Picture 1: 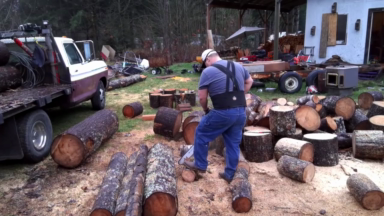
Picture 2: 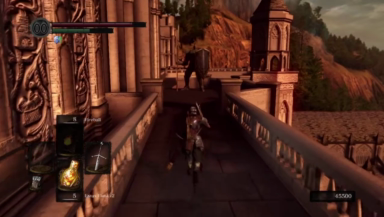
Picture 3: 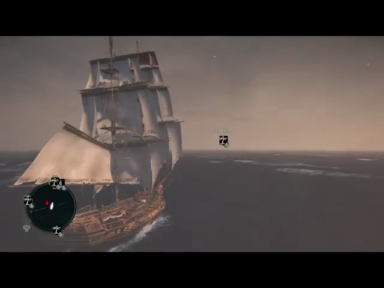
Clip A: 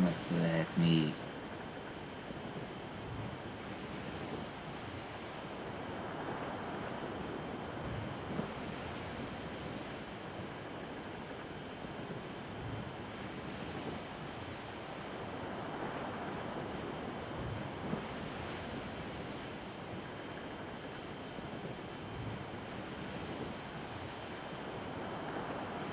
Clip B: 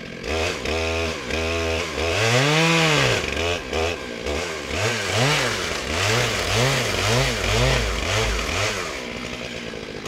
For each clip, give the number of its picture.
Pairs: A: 3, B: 1